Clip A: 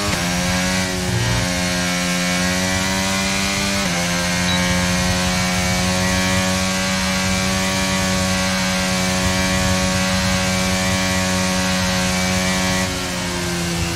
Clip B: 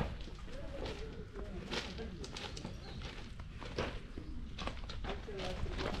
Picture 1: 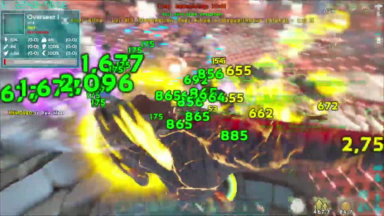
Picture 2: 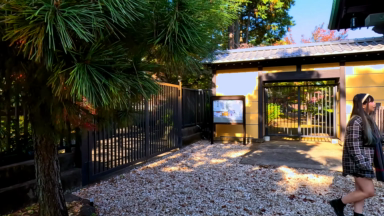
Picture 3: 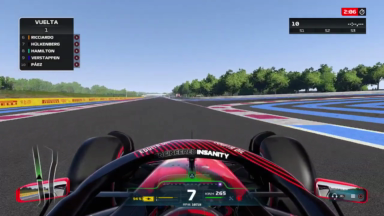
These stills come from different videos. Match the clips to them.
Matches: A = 3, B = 2